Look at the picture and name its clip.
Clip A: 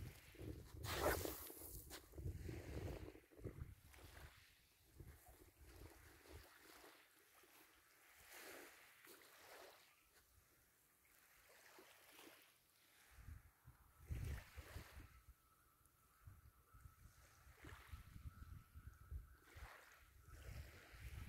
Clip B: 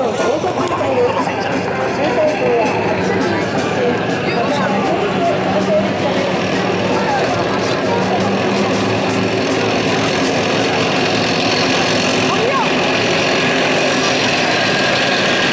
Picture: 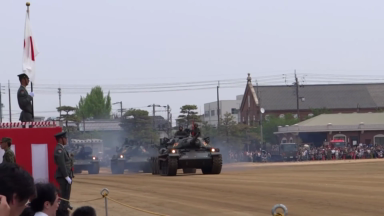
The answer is B